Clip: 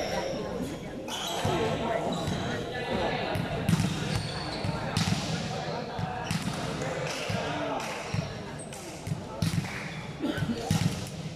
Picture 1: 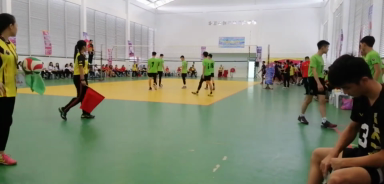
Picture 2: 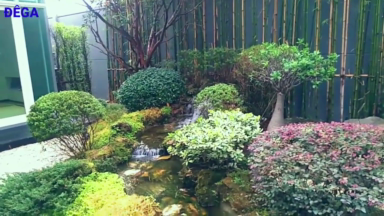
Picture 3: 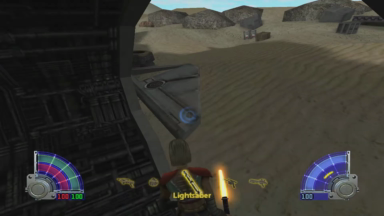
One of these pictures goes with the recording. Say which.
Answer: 1